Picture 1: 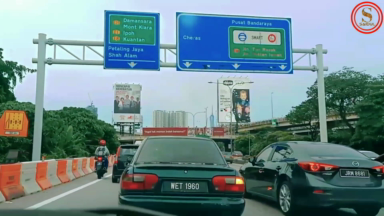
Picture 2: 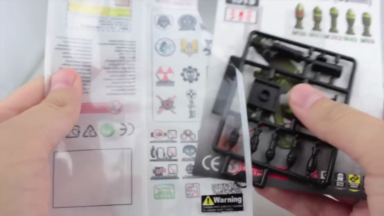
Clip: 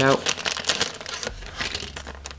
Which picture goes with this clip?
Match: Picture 2